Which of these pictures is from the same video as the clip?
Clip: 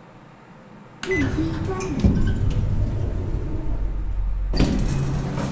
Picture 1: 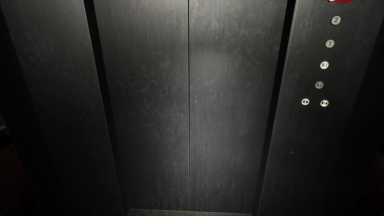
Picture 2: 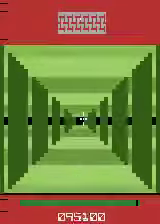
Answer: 1